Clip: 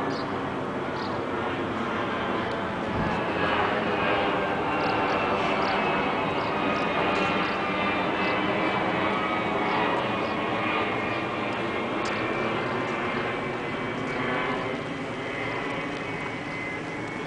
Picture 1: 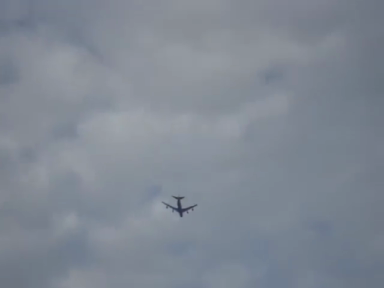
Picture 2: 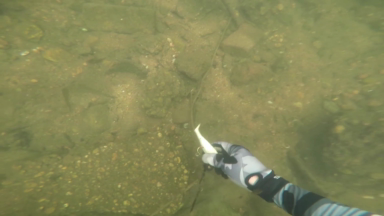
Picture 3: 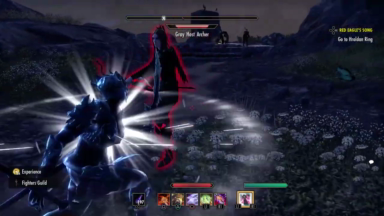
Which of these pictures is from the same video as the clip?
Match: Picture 1